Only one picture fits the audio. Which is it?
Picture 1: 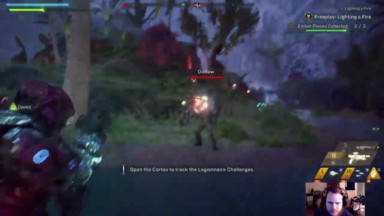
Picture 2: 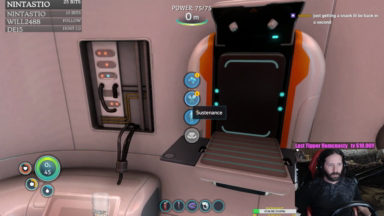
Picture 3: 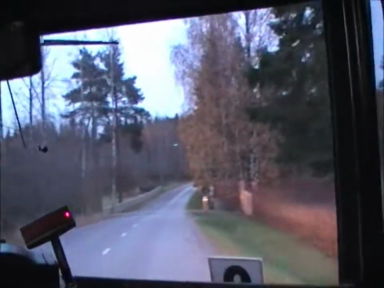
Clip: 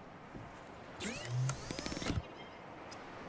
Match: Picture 2